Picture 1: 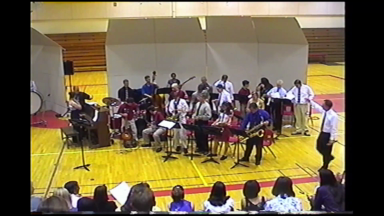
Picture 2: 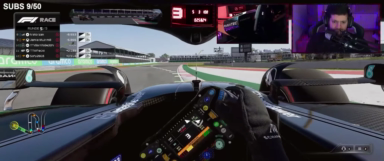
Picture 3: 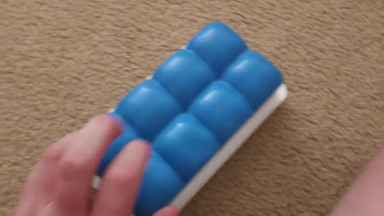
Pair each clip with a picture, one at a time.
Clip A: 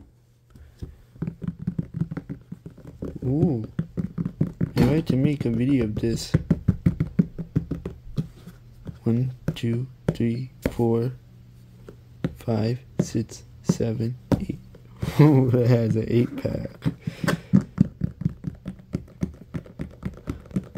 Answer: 3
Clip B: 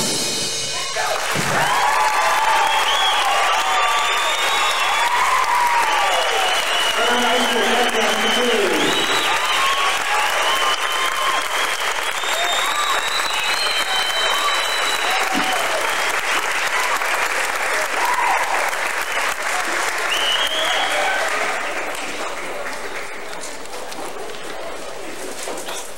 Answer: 1